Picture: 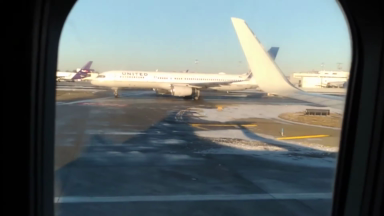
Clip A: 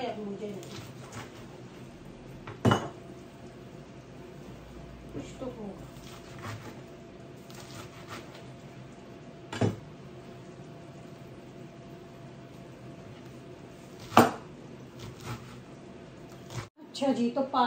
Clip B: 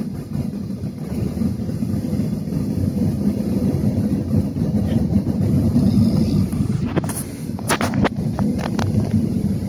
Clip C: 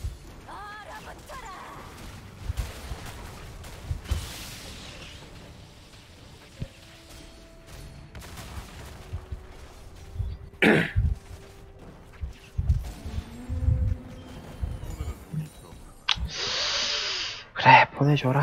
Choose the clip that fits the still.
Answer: B